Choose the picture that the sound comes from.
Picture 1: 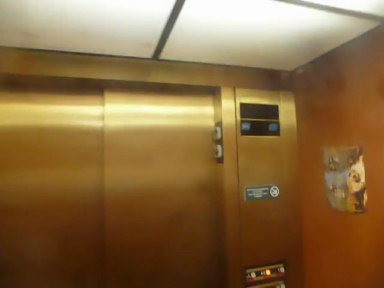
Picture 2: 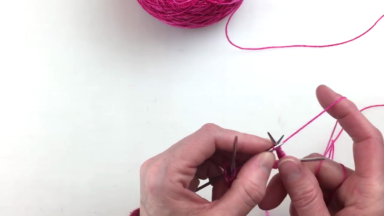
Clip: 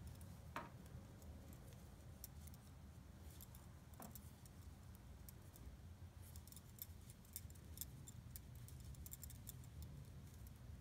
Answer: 2